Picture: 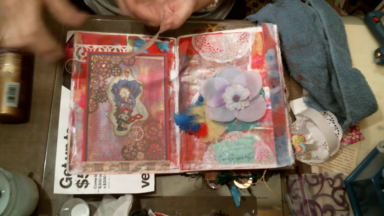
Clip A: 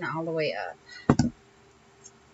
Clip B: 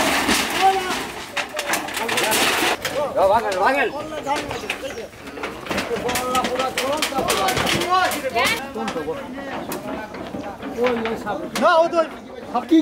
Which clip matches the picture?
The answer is A